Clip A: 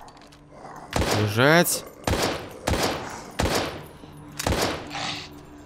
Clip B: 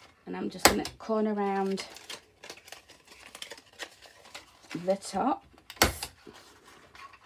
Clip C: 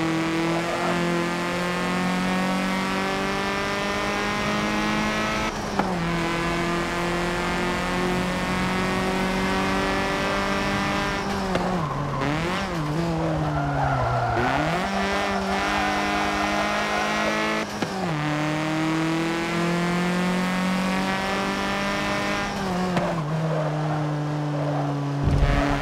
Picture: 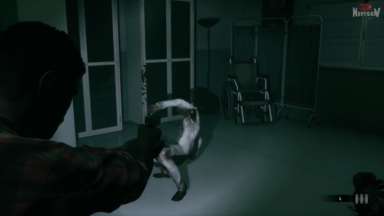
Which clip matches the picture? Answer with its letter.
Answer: A